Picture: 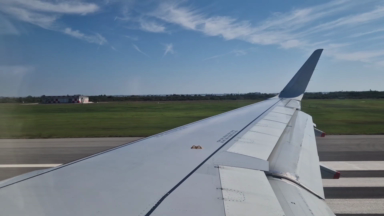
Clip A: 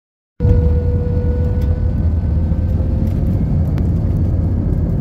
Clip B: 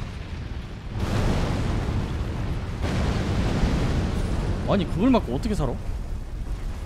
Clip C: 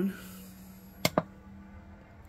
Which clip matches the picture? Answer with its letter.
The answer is A